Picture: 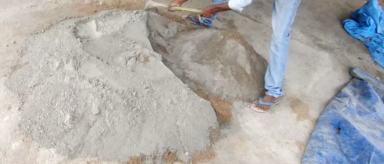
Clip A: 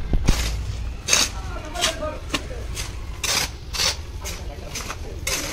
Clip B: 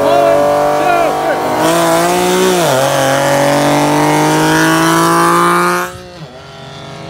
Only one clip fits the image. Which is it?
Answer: A